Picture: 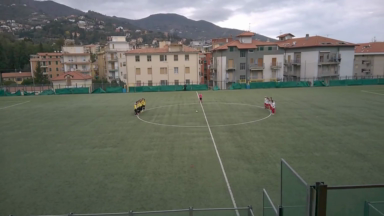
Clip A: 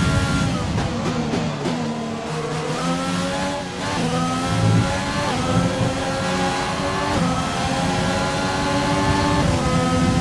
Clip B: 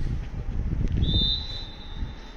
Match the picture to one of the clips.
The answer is B